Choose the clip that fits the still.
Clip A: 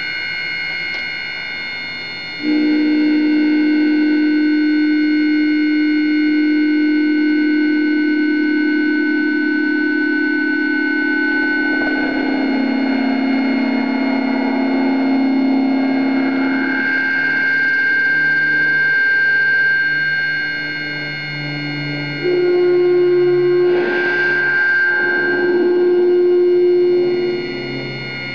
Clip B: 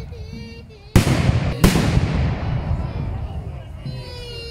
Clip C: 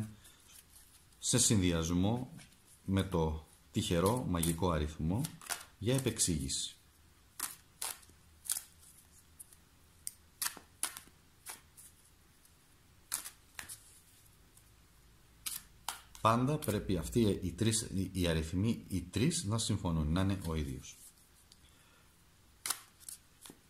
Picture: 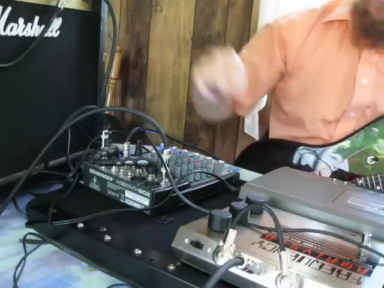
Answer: A